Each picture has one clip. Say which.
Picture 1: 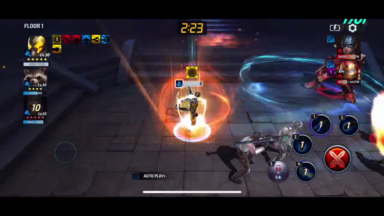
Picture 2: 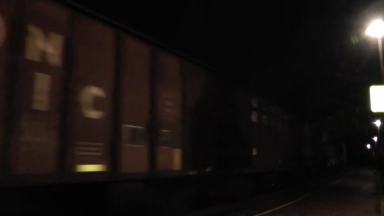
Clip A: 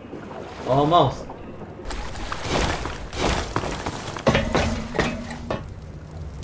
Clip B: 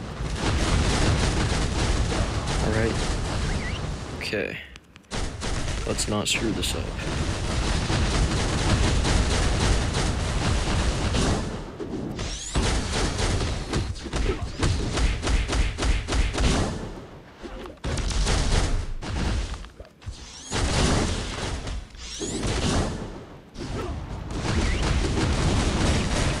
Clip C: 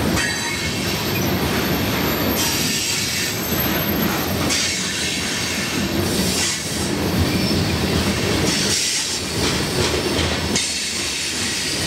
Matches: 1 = B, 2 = C